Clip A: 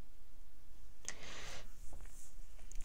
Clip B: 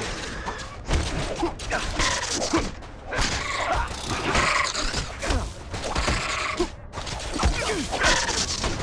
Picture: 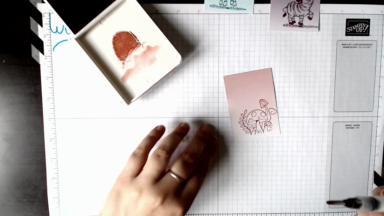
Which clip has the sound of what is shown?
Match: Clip A